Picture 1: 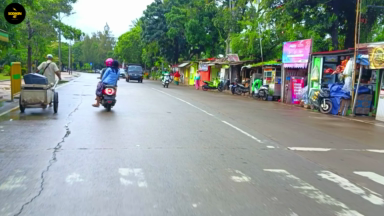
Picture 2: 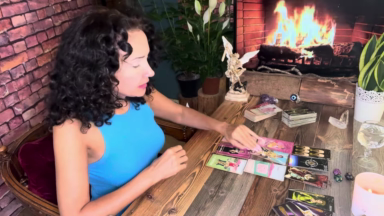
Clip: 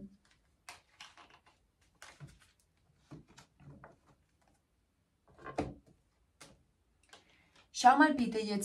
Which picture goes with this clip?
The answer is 2